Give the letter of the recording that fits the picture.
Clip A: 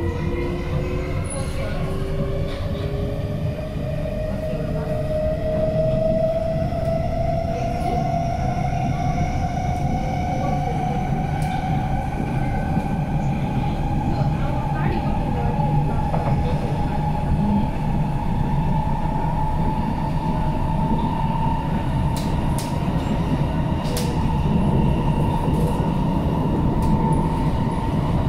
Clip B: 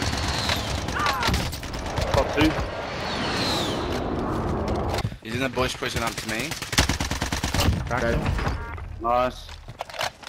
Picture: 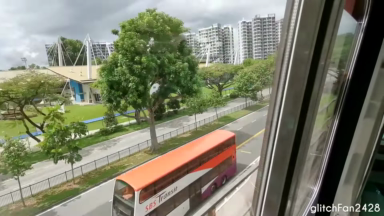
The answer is A